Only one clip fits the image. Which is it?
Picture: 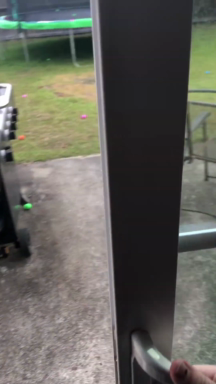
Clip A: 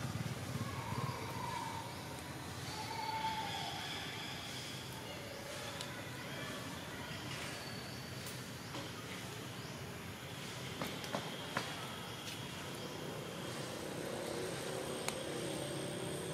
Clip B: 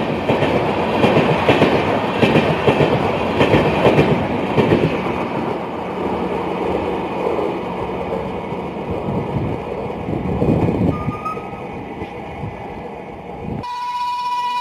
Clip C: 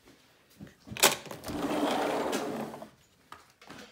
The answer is C